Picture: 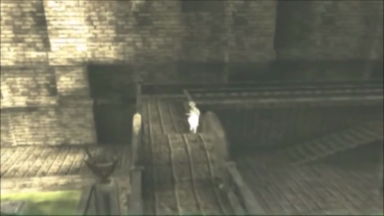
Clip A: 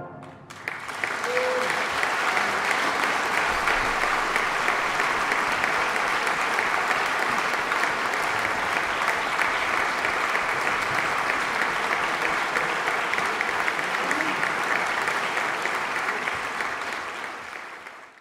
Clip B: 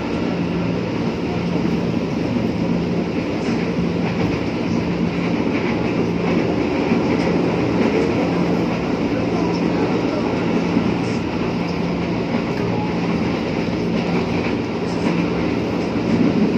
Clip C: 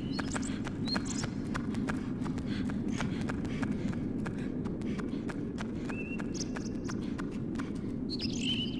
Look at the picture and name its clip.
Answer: C